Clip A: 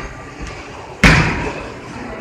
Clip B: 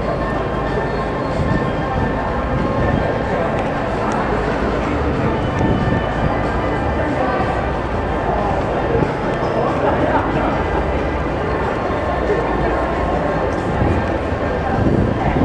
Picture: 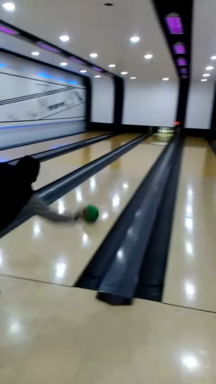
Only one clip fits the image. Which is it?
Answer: A